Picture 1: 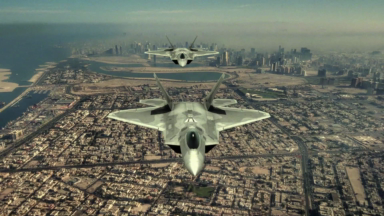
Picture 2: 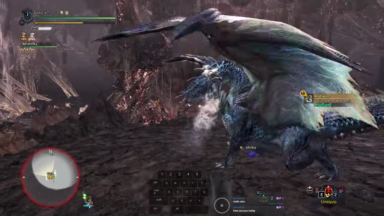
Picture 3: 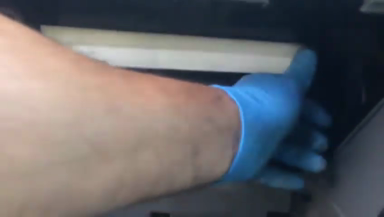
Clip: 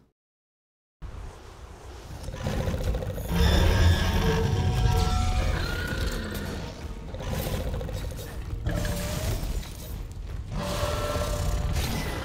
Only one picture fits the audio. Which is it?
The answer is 2